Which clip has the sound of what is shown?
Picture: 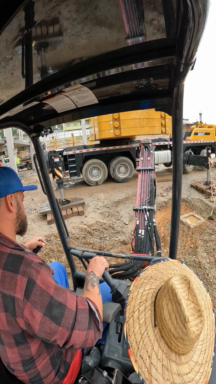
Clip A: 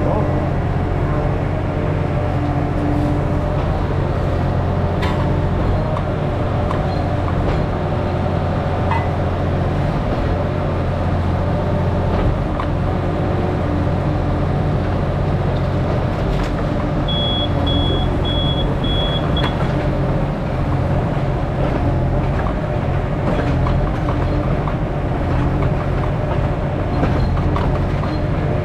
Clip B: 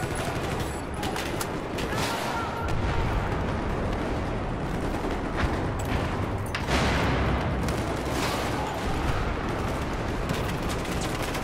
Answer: A